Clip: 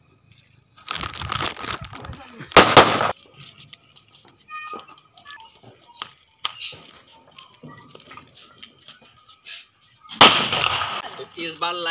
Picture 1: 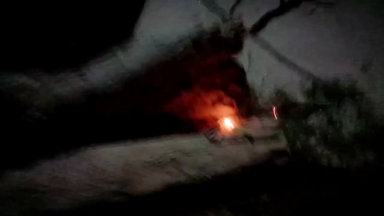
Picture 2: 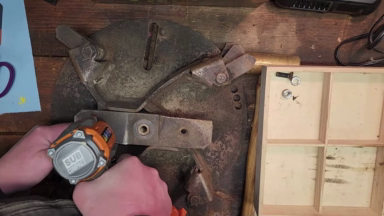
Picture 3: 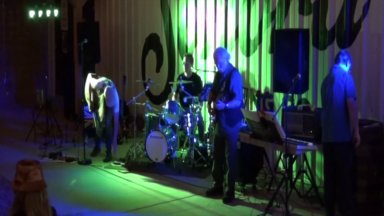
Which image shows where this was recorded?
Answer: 1